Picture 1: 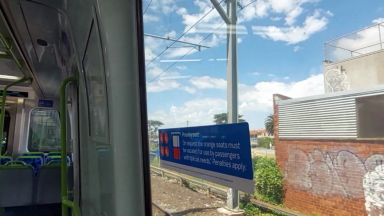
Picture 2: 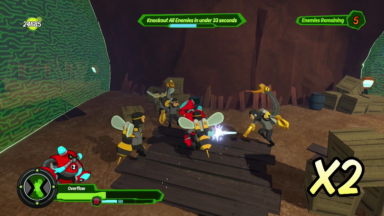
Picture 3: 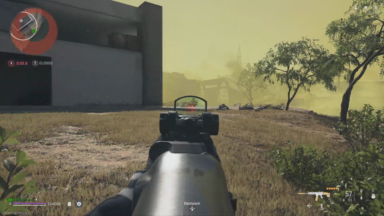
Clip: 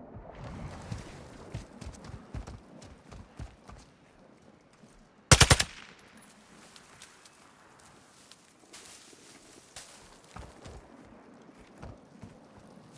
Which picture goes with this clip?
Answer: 3